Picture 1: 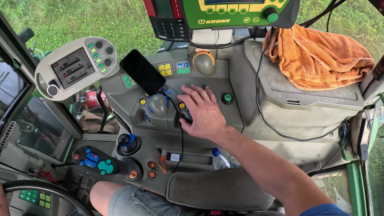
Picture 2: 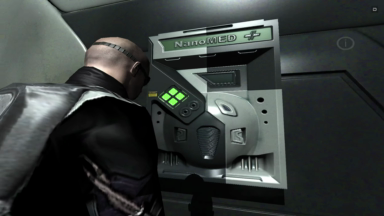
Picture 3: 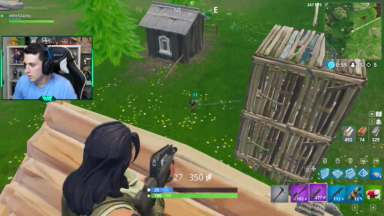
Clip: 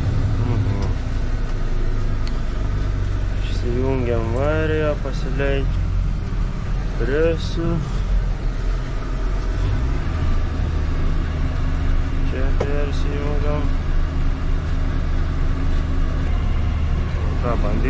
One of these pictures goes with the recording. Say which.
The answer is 1